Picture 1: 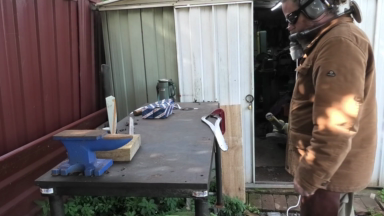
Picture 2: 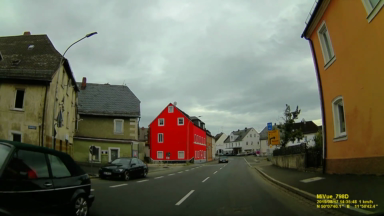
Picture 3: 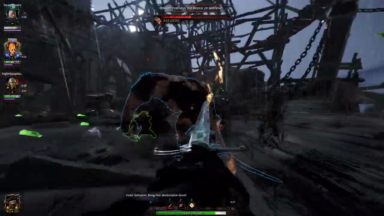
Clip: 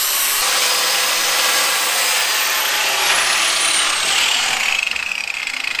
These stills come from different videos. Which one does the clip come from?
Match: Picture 1